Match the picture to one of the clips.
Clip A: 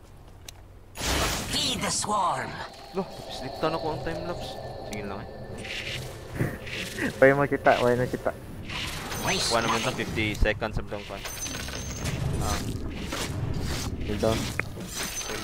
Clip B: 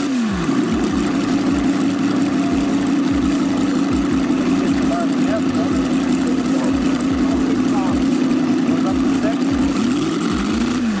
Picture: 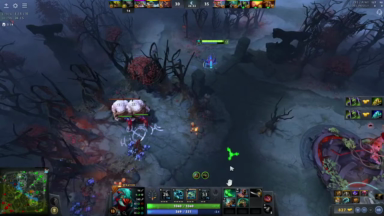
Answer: A